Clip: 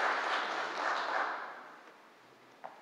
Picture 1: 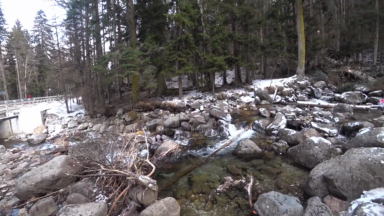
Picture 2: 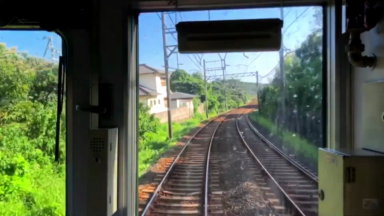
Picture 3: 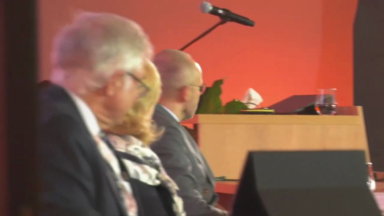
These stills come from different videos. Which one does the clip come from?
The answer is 3